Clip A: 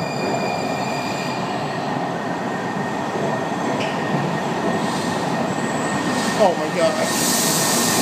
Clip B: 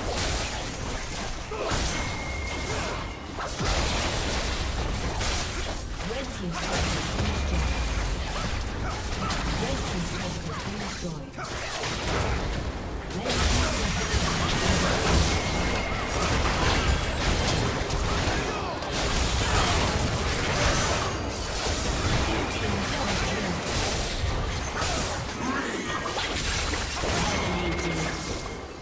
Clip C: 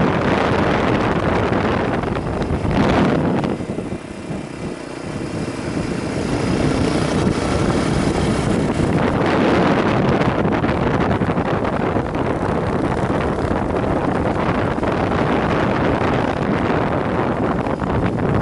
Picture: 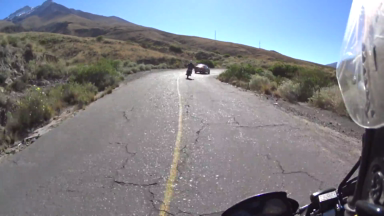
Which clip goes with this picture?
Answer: C